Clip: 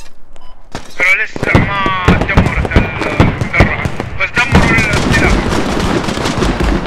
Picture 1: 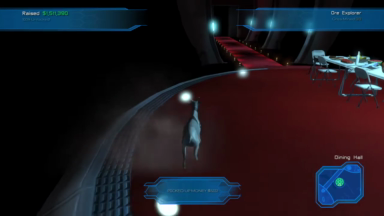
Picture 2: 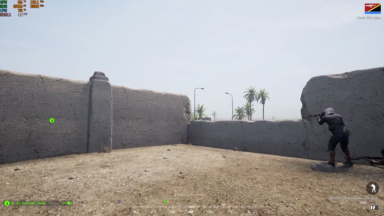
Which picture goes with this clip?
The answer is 2